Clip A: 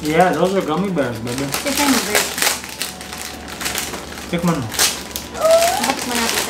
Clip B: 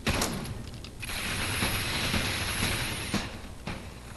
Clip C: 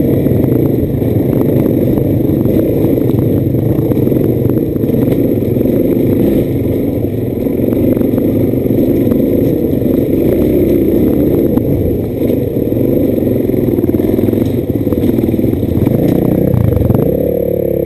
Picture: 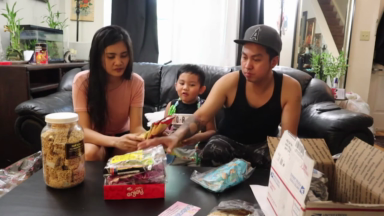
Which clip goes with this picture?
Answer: A